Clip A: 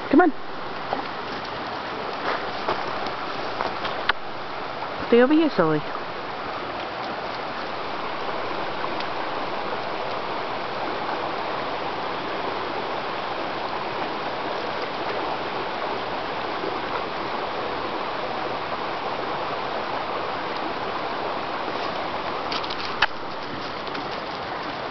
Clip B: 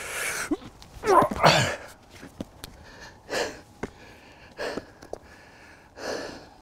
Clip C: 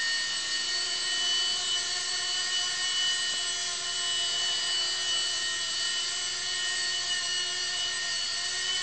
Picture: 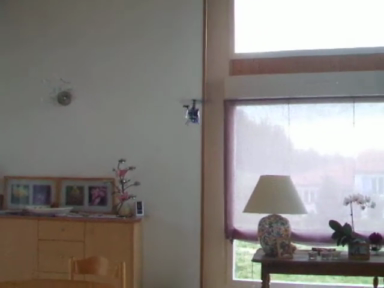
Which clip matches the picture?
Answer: C